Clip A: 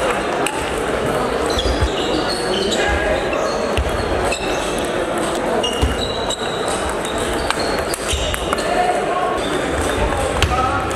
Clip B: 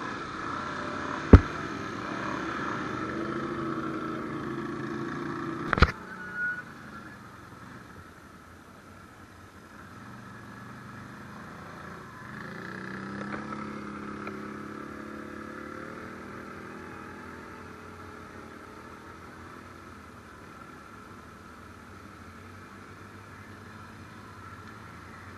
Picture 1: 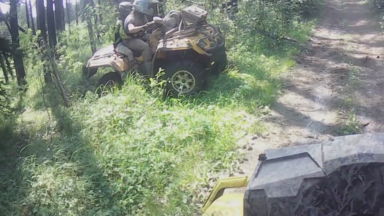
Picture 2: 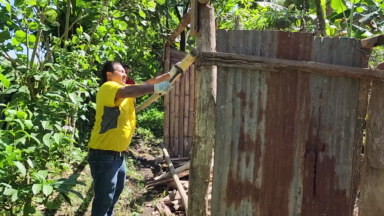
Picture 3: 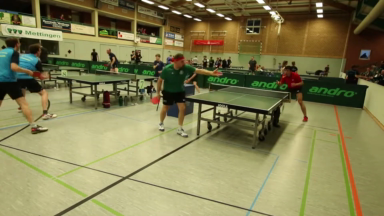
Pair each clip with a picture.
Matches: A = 3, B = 1